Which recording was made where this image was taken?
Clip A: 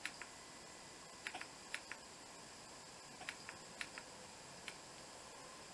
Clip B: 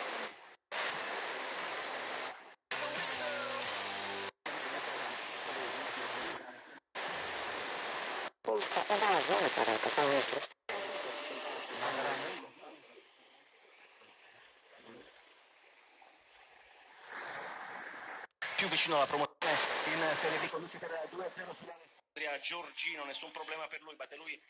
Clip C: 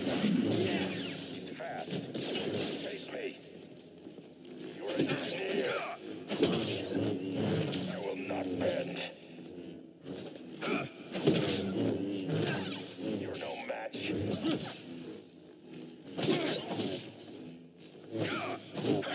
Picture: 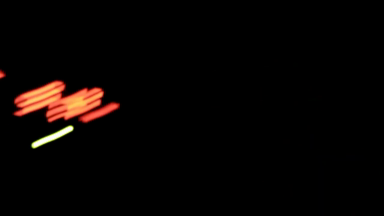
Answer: B